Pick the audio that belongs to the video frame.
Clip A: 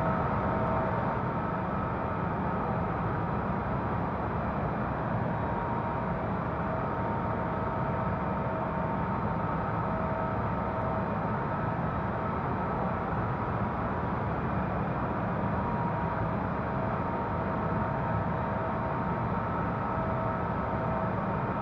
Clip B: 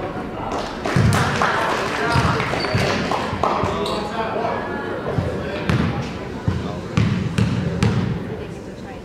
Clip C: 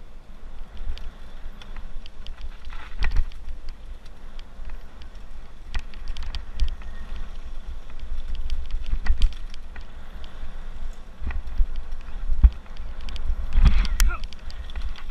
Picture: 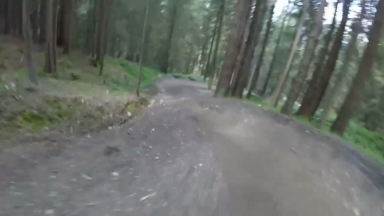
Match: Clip C